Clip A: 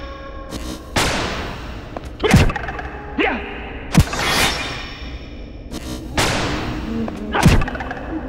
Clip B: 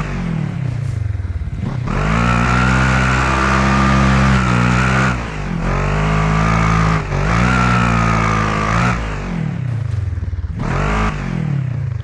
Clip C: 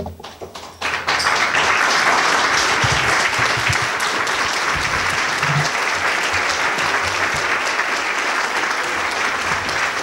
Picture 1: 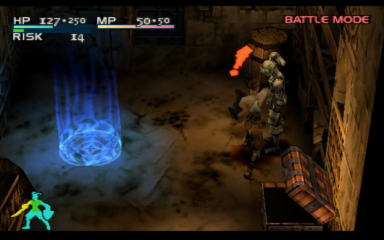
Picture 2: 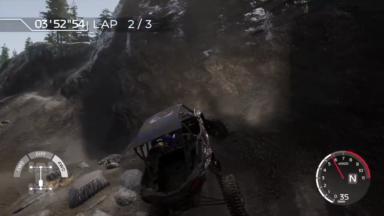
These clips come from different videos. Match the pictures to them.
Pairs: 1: A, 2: B